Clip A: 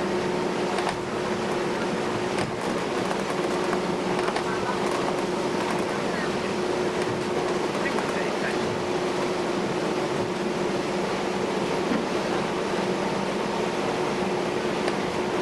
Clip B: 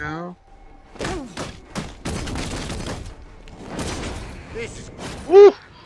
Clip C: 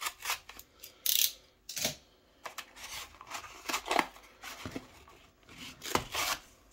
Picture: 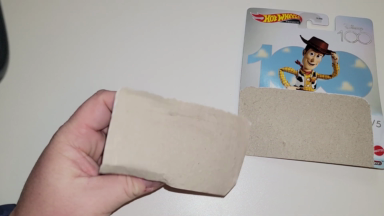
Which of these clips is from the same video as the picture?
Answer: C